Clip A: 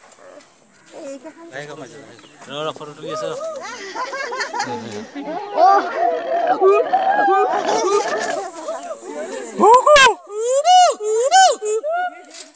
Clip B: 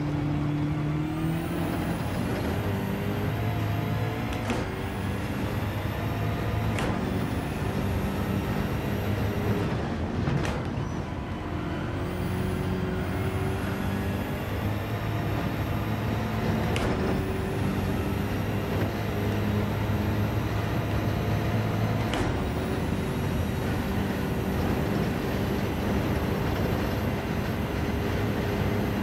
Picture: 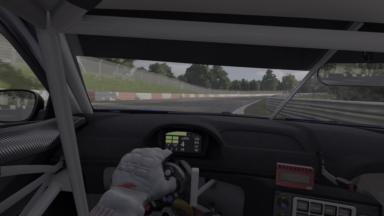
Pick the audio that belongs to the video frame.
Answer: B